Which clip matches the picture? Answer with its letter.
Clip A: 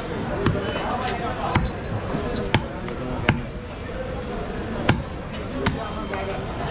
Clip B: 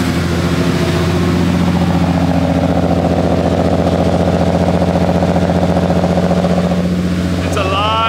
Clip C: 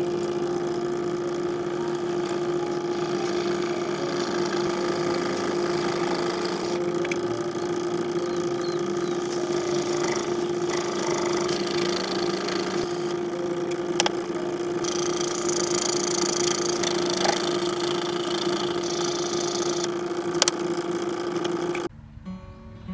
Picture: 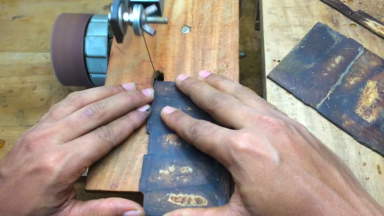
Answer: C